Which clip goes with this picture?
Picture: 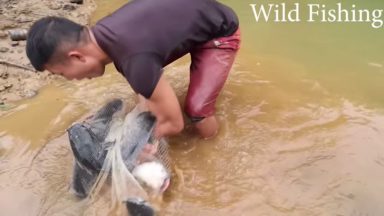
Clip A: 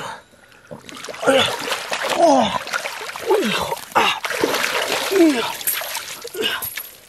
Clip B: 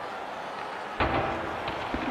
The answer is A